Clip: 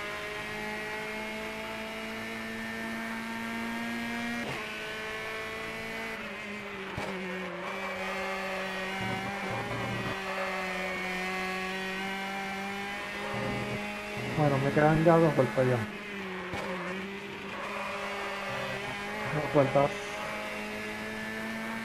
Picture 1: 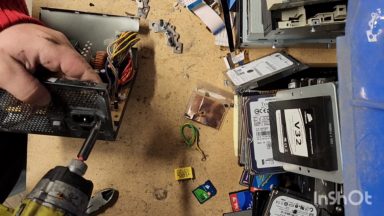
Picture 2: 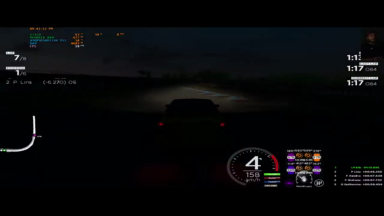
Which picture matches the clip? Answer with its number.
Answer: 2